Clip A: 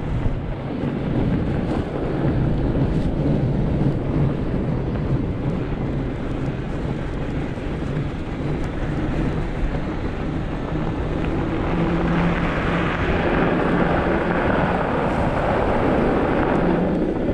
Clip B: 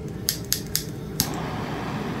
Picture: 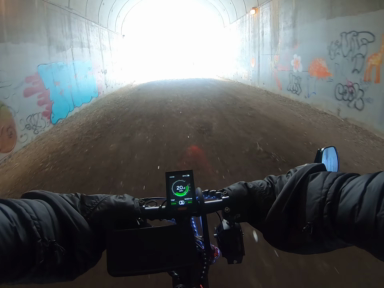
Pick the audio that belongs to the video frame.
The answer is A